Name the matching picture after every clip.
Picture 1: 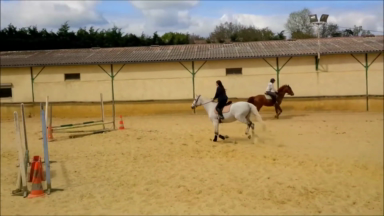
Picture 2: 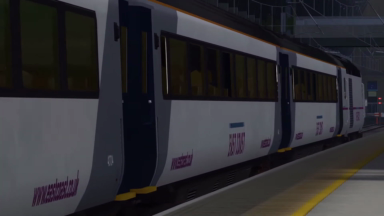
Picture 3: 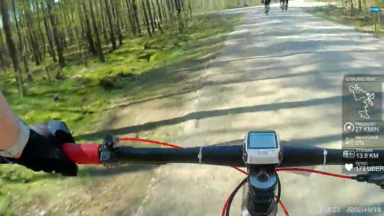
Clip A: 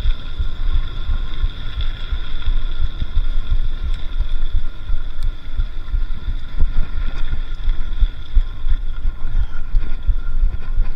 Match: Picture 3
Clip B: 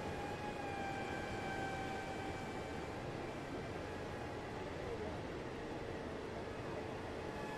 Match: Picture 2